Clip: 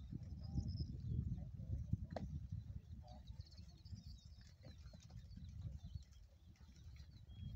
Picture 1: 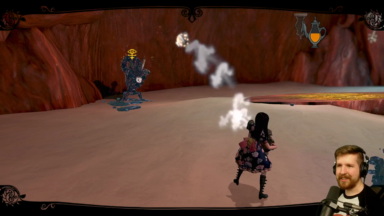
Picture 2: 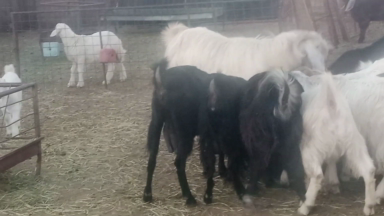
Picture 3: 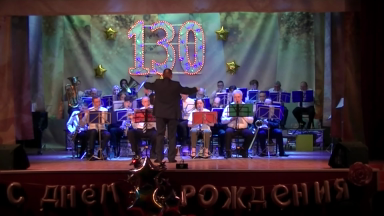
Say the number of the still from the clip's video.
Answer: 2